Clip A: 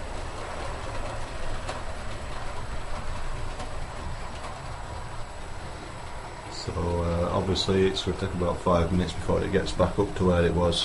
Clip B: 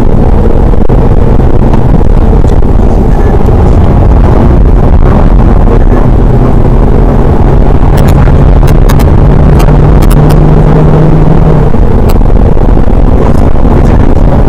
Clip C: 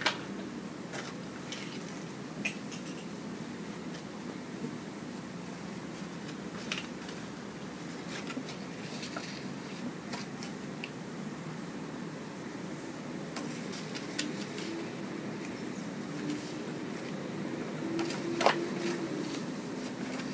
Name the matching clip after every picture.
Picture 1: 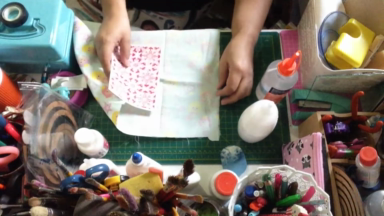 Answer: C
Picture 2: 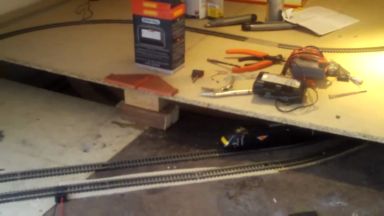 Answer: A